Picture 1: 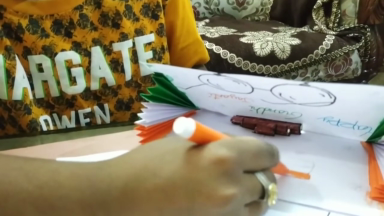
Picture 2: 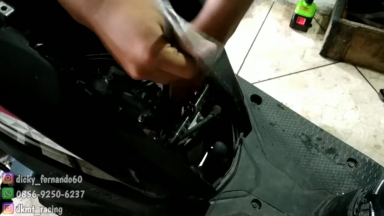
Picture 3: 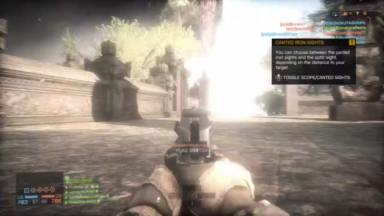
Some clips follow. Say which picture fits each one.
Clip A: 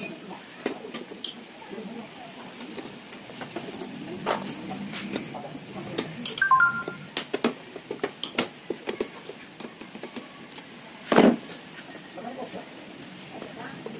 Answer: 2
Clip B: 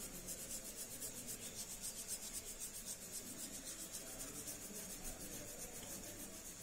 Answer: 1